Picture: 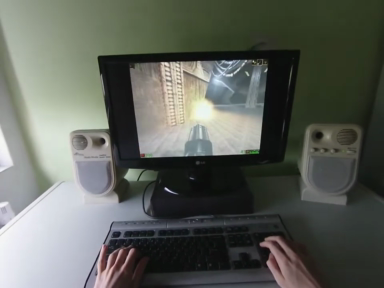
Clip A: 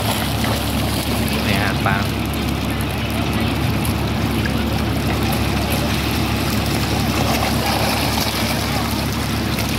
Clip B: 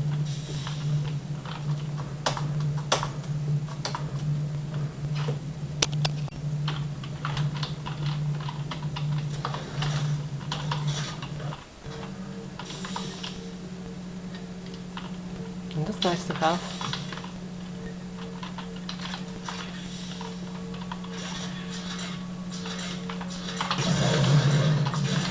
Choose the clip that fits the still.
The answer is B